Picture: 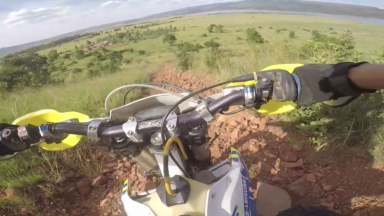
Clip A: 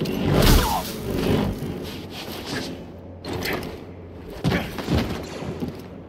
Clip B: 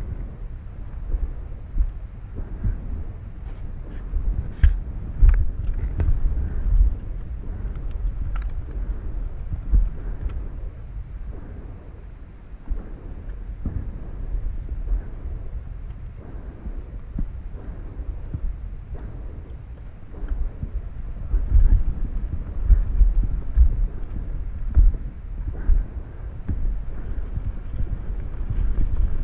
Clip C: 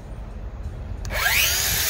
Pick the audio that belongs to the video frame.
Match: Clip B